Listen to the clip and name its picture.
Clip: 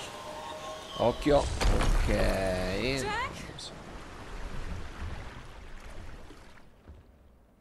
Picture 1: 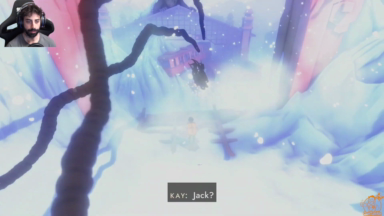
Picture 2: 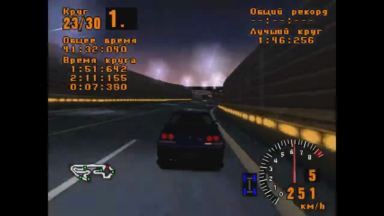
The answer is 1